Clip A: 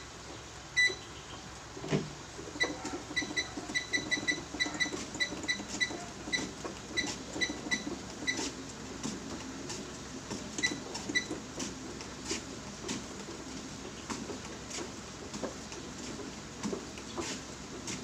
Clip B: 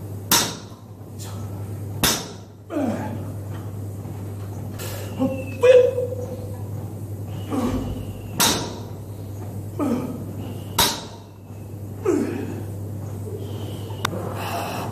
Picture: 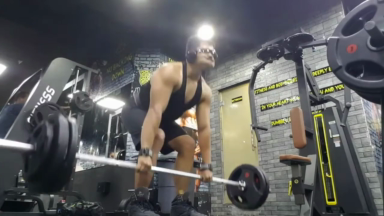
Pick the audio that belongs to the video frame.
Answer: B